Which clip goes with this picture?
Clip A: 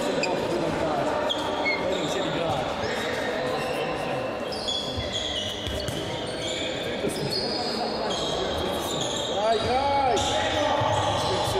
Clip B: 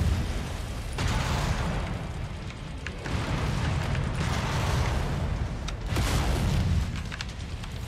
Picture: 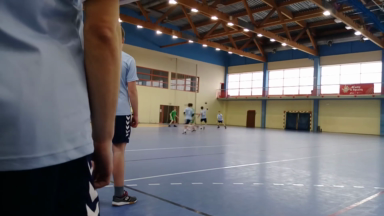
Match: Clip A